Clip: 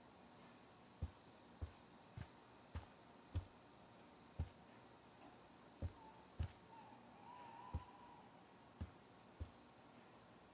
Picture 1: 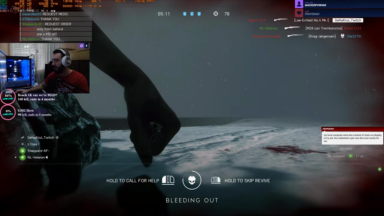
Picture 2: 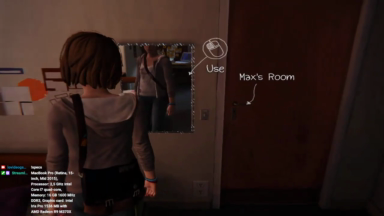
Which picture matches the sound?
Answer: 2